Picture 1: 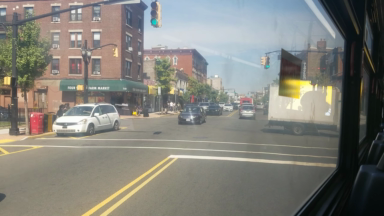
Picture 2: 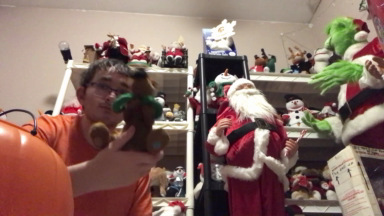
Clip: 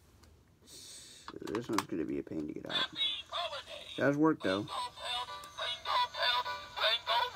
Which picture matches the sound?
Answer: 2